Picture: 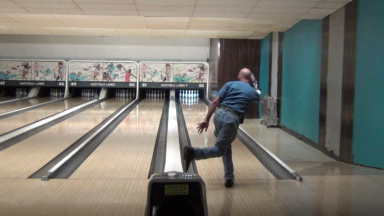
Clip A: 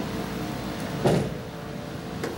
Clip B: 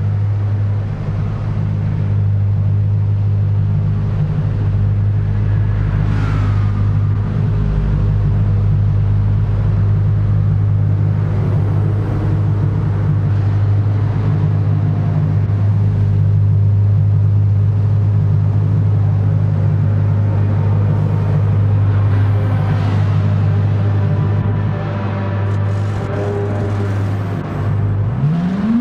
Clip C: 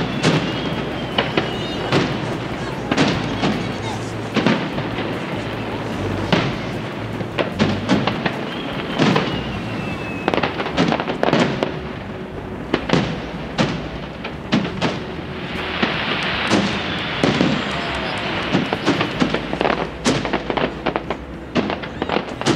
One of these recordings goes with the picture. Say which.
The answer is A